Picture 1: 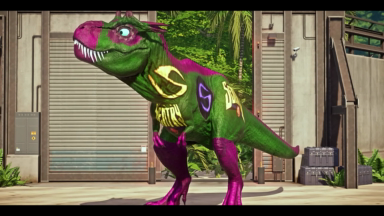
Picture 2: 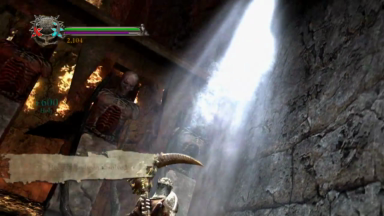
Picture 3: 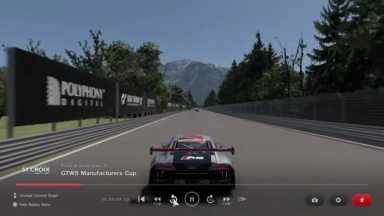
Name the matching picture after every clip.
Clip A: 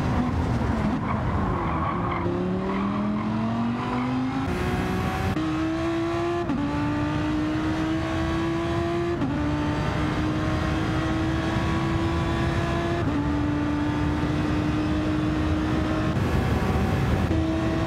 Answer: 3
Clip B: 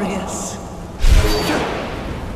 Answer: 2